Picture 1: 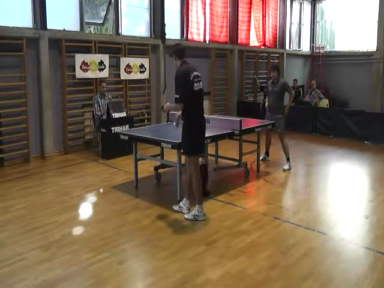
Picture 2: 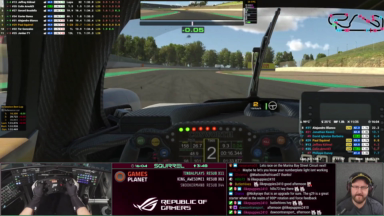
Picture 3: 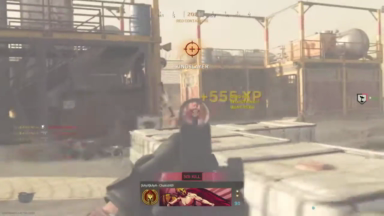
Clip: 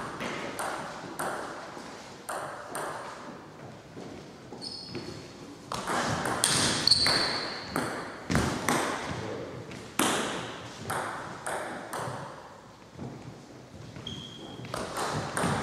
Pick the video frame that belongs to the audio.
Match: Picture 1